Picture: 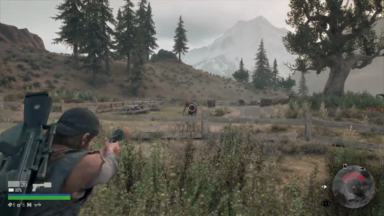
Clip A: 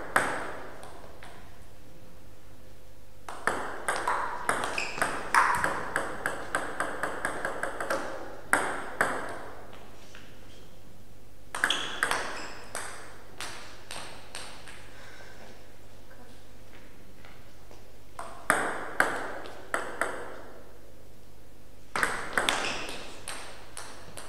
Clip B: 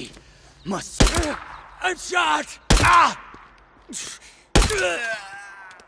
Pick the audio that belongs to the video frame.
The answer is B